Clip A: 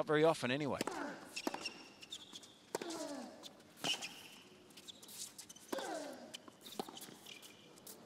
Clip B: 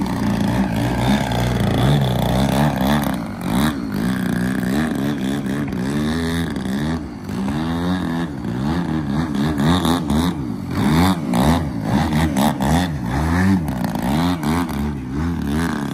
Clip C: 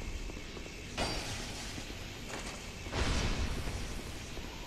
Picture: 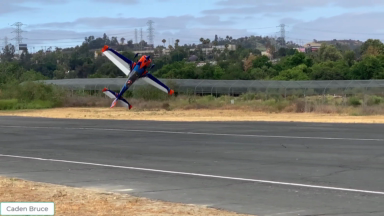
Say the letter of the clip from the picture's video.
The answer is B